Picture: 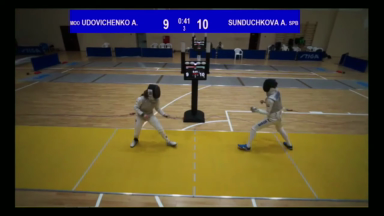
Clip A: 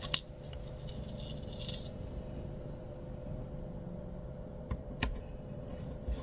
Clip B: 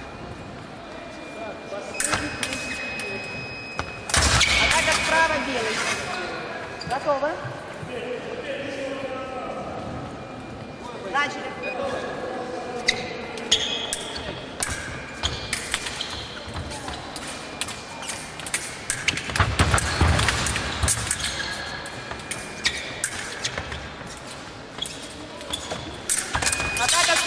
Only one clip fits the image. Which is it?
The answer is B